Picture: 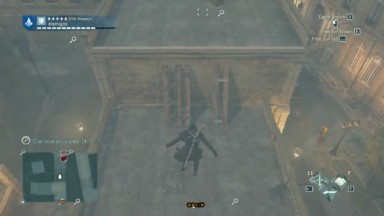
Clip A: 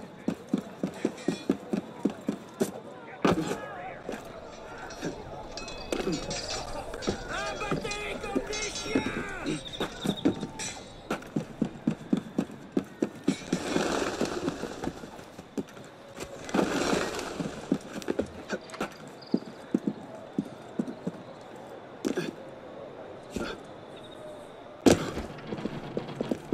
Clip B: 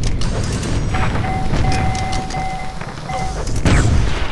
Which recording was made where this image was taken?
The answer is A